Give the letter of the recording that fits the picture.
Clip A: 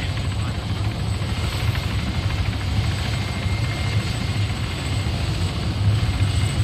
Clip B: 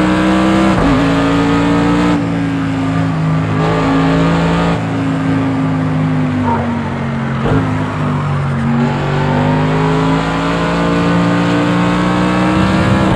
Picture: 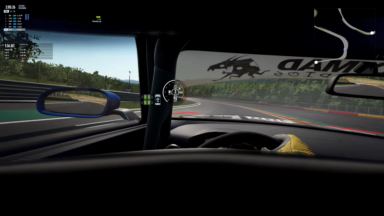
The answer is B